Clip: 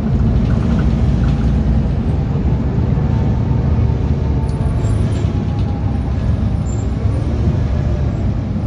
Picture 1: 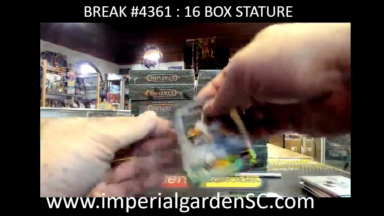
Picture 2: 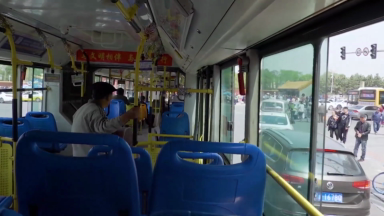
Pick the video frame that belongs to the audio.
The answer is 2